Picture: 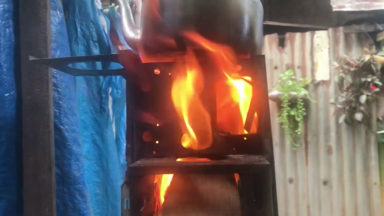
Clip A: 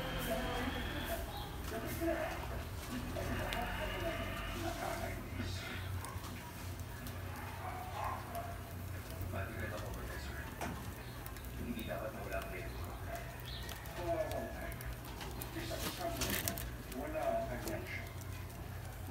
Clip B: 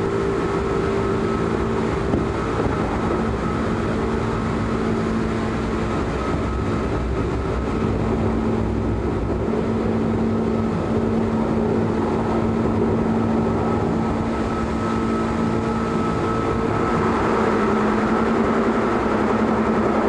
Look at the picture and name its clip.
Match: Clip A